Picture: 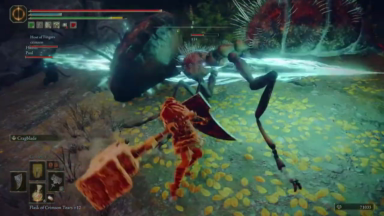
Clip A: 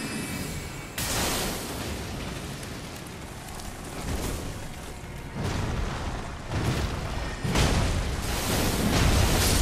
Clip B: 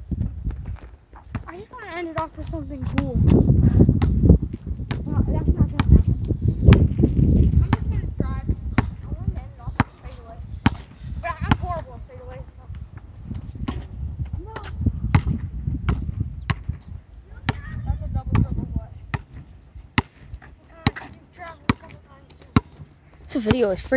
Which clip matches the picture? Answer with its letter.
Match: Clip A